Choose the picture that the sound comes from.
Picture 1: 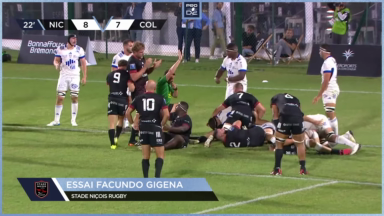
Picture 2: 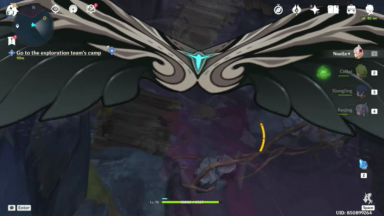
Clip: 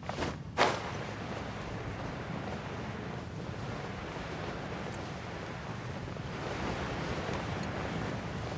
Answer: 2